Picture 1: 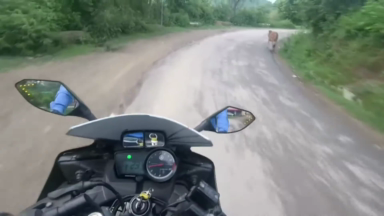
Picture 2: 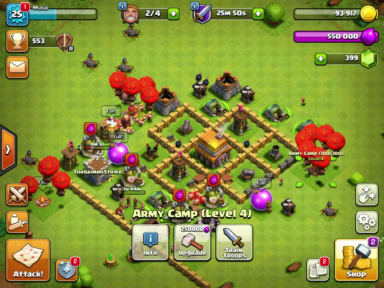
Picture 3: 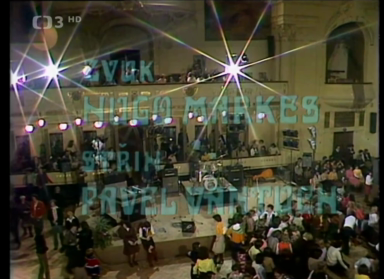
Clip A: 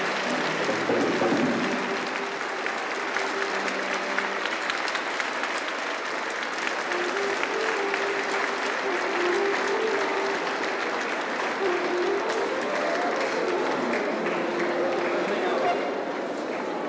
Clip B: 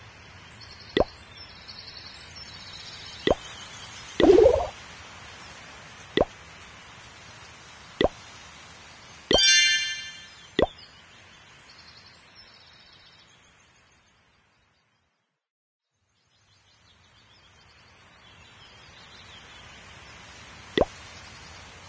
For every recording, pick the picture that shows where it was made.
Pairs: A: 3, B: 2